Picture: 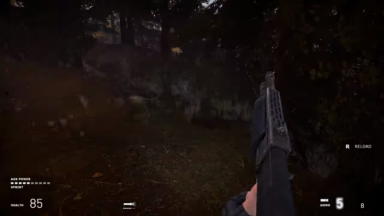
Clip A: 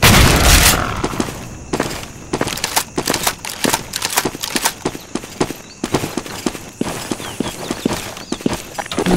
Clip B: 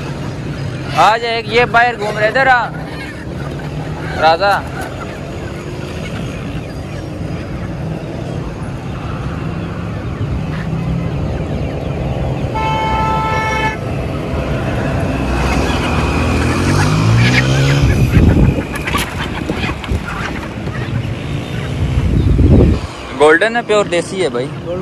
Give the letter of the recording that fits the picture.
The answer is A